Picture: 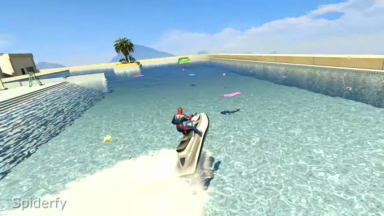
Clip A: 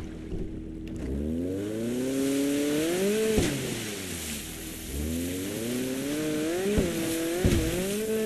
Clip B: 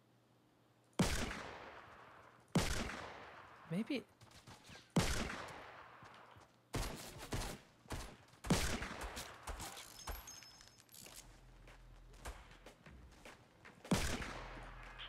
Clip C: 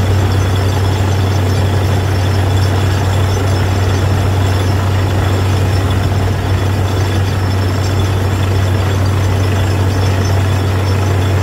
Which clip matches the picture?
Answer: A